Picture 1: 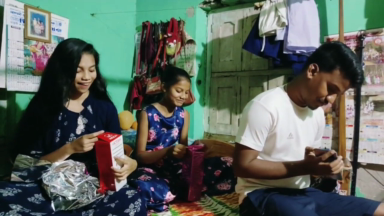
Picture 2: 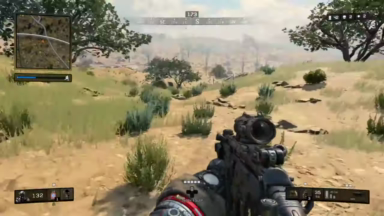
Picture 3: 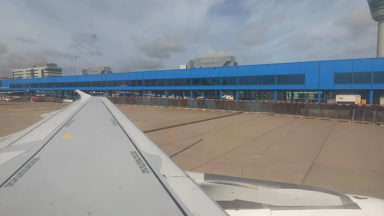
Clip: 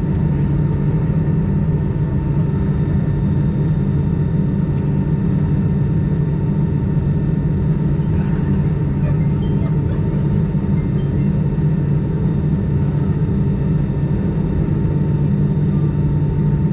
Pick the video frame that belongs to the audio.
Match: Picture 3